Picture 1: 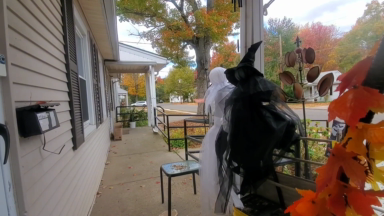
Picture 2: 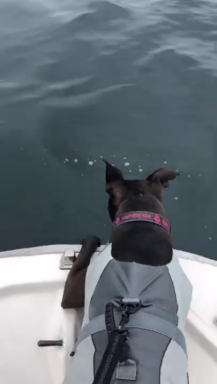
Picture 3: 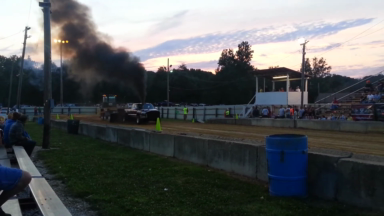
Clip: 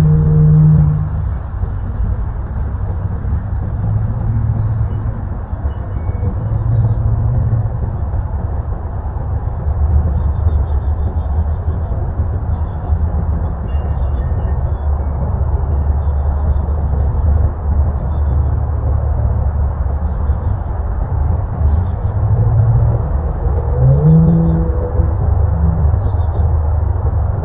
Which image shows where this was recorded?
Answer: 1